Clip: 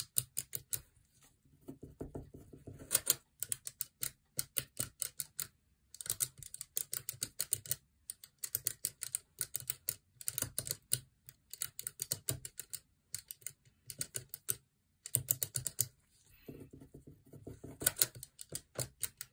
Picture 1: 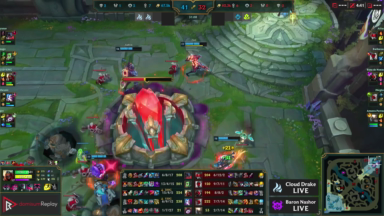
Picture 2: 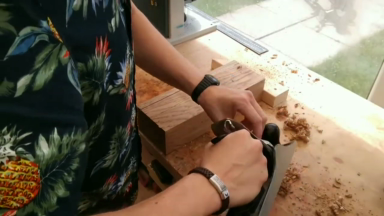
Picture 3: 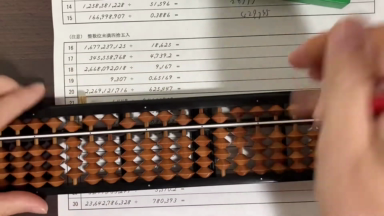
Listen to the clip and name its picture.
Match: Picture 3